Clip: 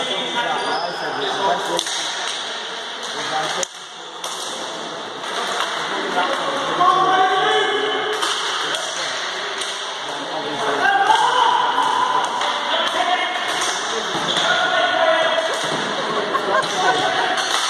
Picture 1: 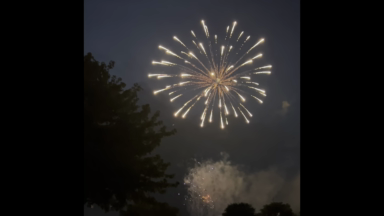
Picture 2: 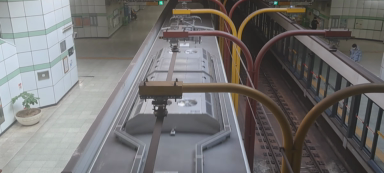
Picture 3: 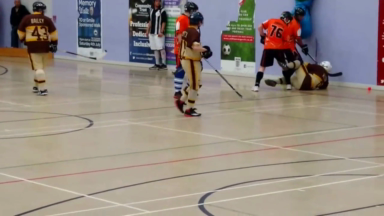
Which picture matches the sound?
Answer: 3